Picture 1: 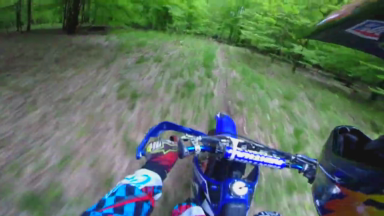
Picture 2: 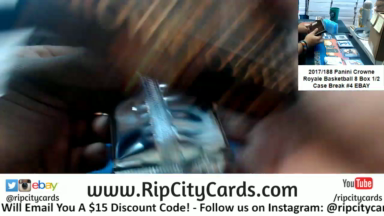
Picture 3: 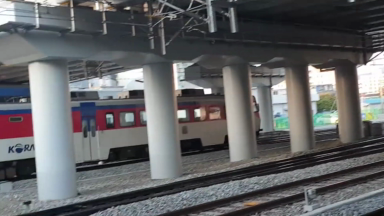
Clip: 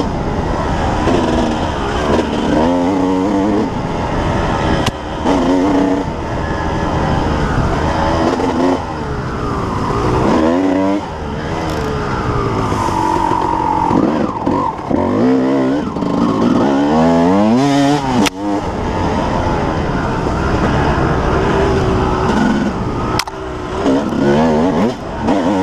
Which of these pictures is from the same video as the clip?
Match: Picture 1